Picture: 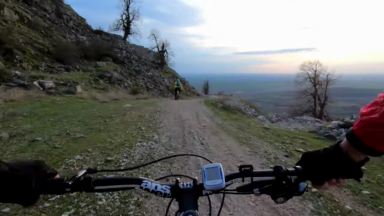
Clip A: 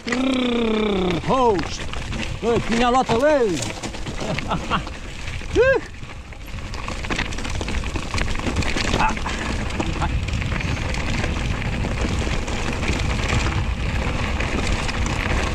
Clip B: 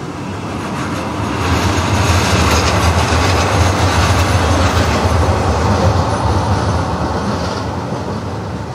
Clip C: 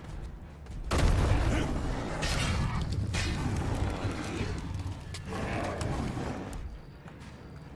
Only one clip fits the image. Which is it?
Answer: A